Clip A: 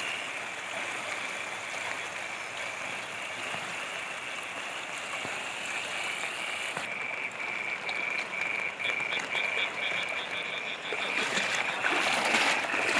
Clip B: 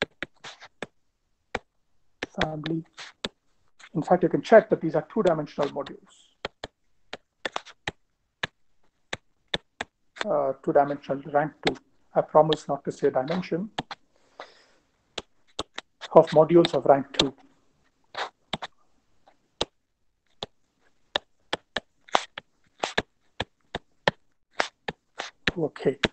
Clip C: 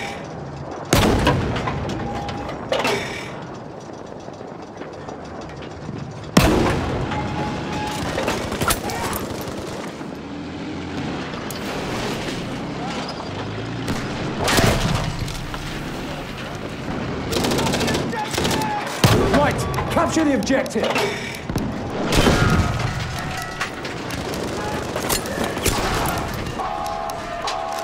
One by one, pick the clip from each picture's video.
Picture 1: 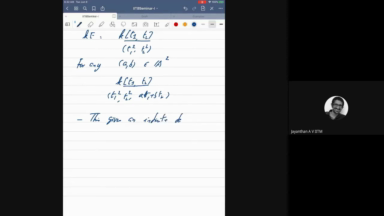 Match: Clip B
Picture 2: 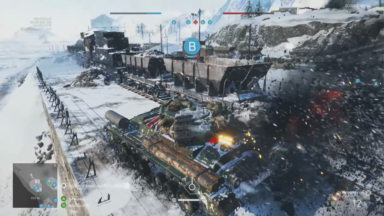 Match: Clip C